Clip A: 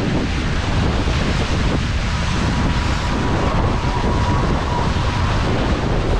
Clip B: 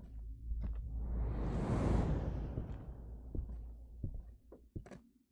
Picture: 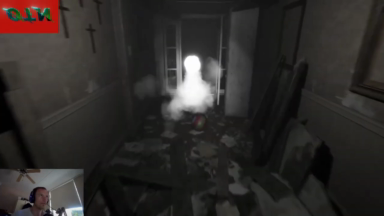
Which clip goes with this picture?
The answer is B